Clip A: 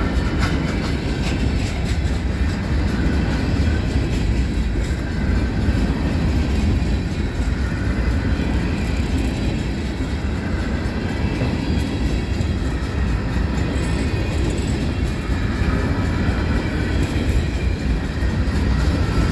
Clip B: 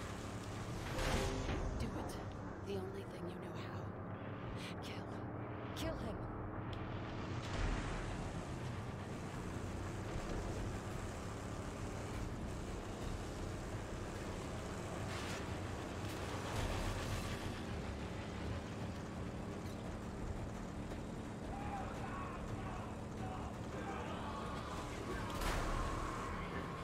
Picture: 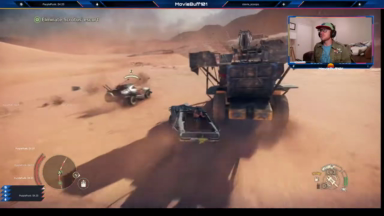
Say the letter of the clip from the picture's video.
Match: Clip B